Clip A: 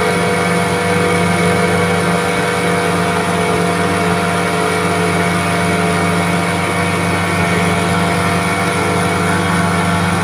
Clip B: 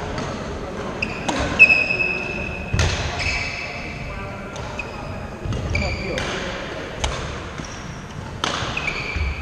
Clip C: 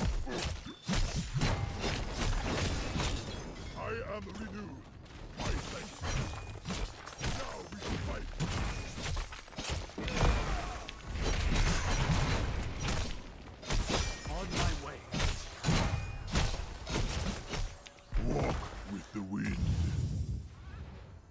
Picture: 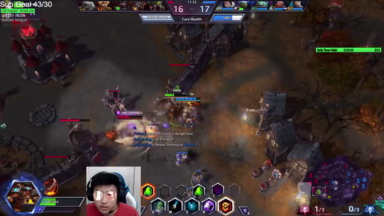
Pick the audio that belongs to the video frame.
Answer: C